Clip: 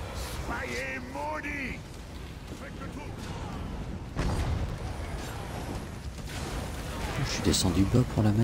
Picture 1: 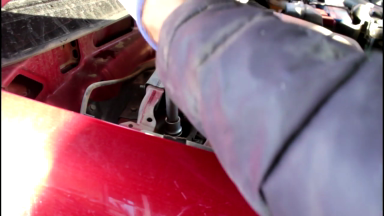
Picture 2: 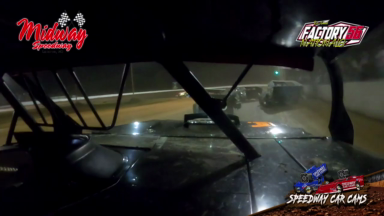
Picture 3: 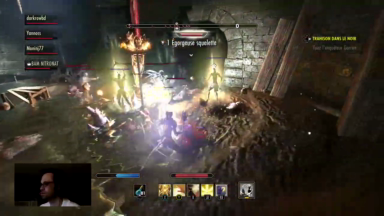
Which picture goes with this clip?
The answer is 3